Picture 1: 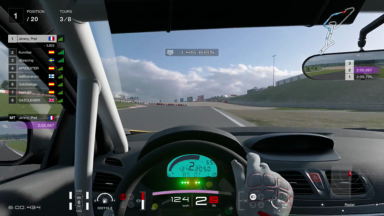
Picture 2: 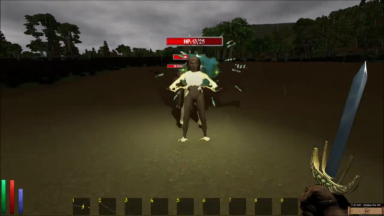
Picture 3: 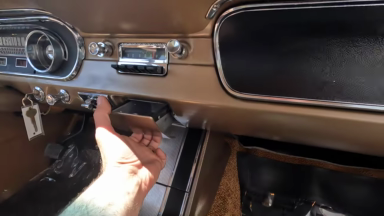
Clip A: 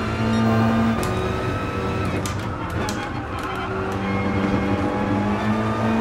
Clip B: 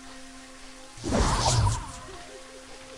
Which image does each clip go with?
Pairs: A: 1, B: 2